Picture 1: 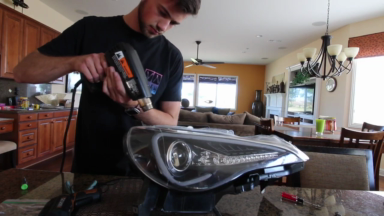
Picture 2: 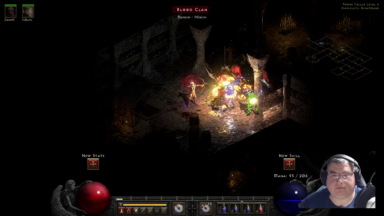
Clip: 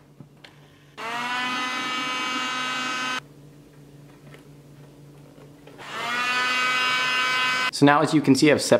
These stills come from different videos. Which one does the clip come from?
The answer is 1